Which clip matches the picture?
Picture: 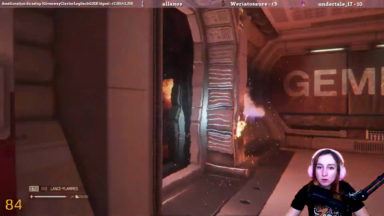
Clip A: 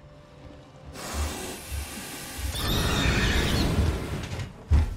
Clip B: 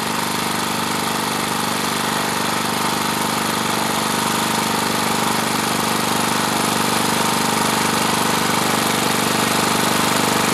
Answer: A